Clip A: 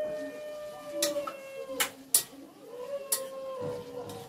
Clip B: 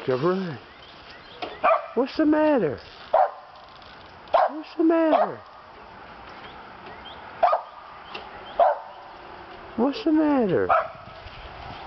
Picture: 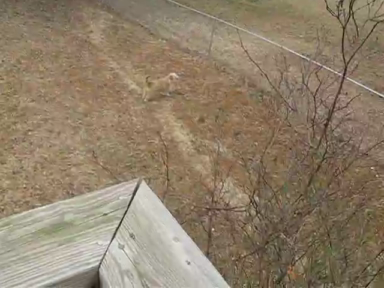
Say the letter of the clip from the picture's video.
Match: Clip B